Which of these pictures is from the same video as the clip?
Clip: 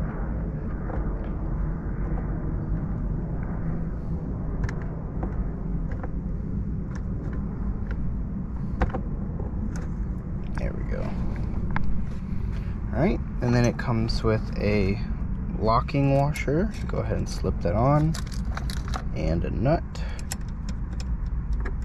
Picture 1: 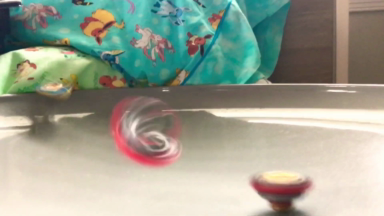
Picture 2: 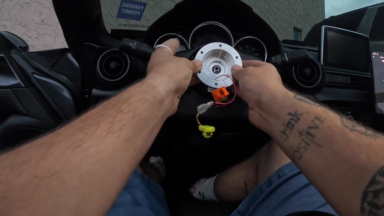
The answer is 2